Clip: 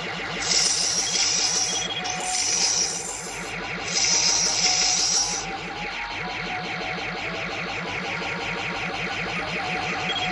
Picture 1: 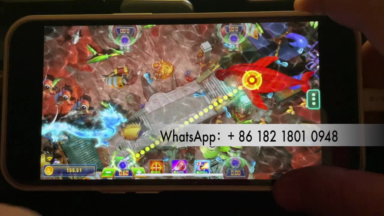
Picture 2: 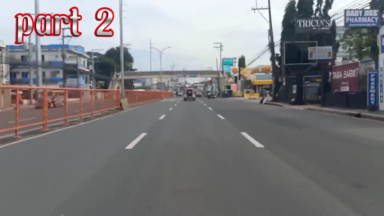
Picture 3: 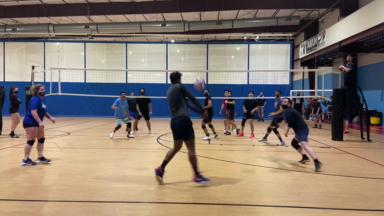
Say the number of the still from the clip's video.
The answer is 1